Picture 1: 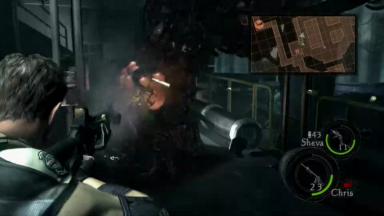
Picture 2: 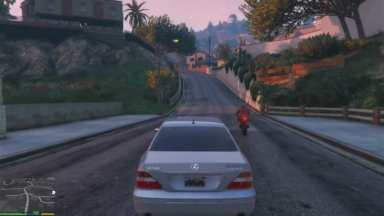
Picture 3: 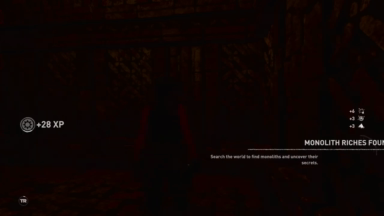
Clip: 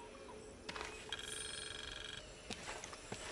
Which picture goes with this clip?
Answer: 3